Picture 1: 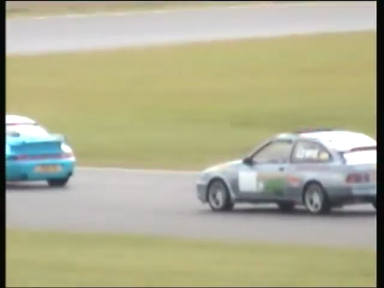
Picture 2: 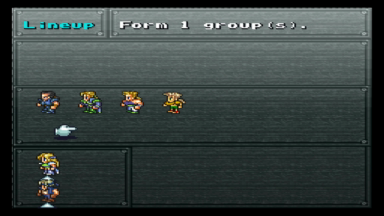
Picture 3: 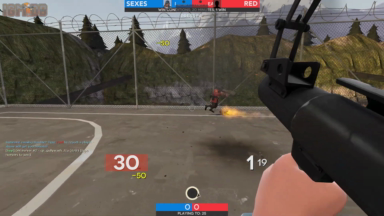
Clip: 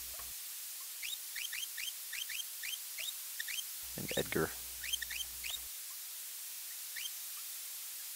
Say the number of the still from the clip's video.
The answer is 2